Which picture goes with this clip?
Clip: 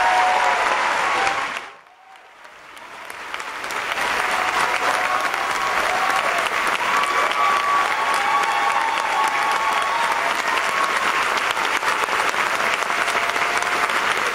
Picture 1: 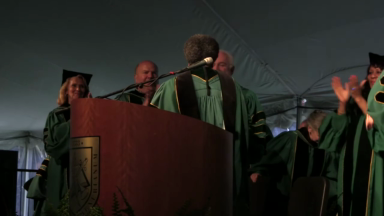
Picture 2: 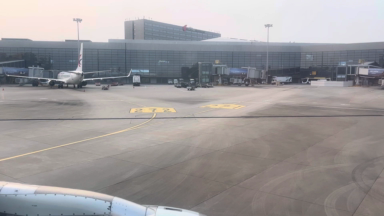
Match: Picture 1